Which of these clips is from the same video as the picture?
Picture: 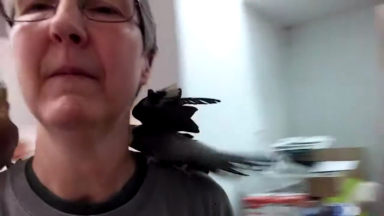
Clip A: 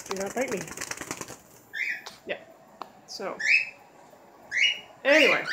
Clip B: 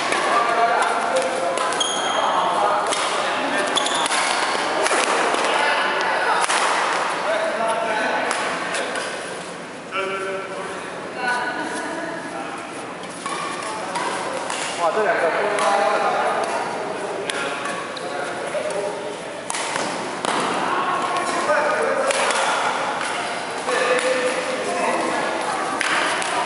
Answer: A